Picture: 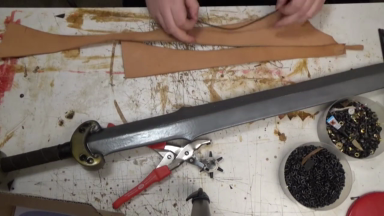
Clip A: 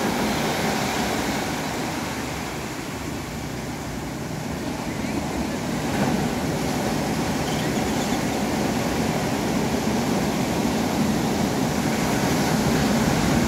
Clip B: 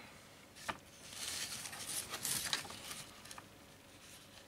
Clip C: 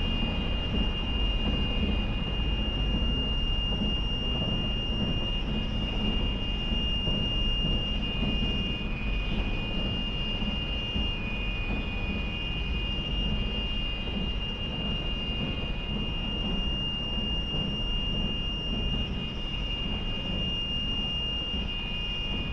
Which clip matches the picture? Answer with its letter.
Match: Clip B